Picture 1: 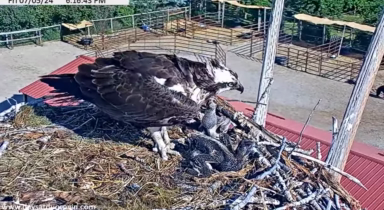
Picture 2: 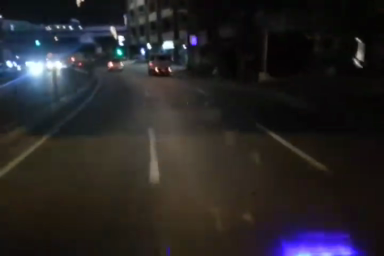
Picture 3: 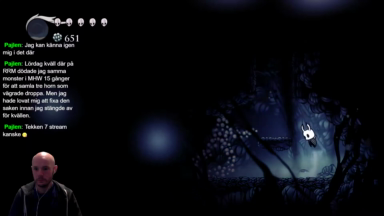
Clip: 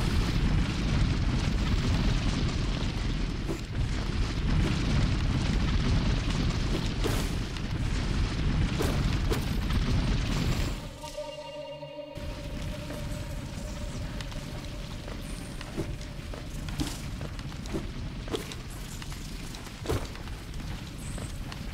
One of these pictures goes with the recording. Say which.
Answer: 3